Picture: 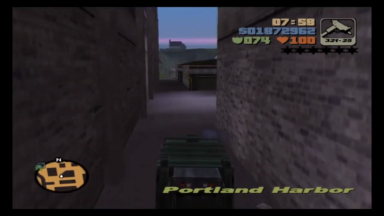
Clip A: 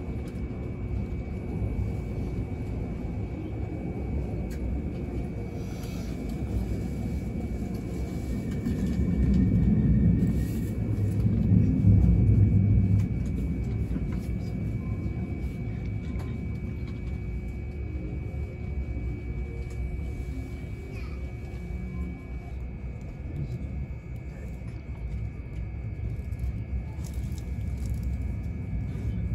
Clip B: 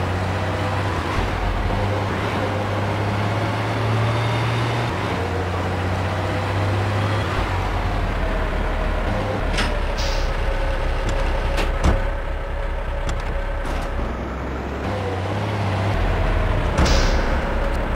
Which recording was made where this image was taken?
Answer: B